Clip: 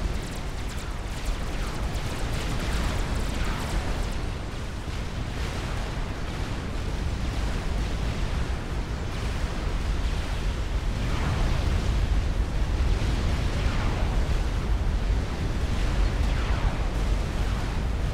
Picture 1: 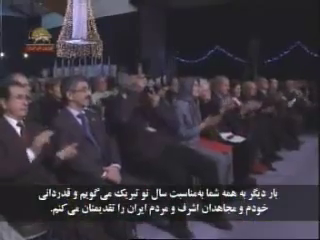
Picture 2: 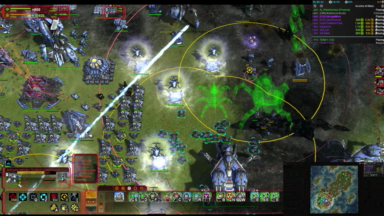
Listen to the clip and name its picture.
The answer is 2